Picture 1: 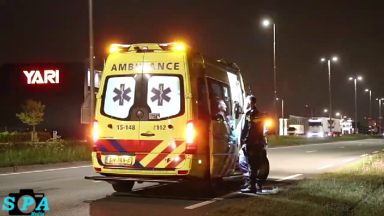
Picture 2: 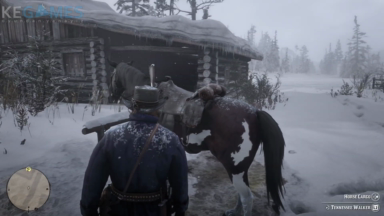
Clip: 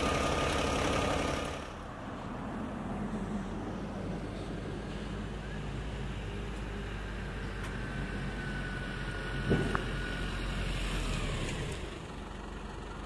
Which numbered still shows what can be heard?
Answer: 1